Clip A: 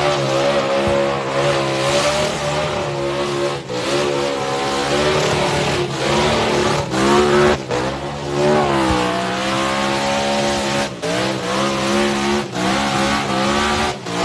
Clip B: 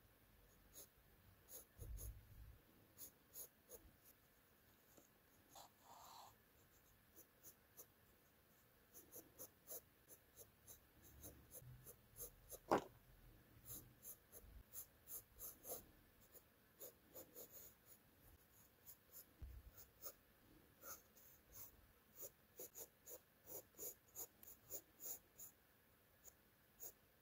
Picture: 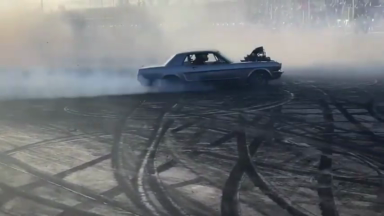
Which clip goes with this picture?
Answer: A